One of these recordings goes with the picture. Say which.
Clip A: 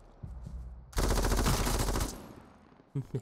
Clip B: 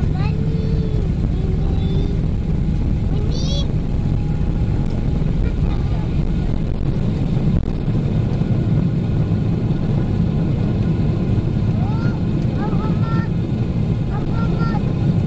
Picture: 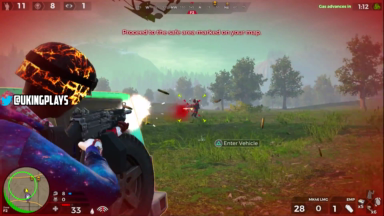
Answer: A